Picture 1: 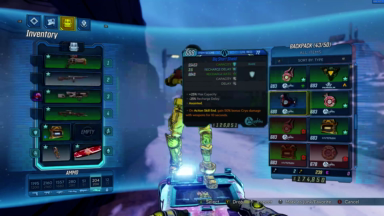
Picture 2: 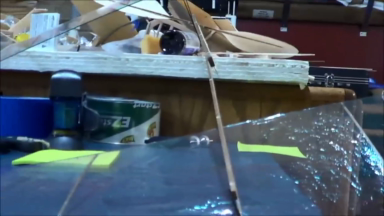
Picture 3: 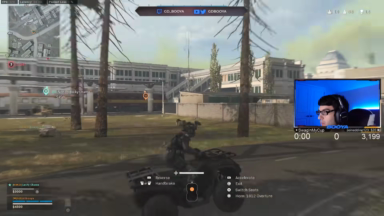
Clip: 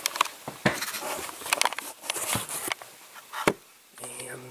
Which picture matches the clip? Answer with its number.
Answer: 2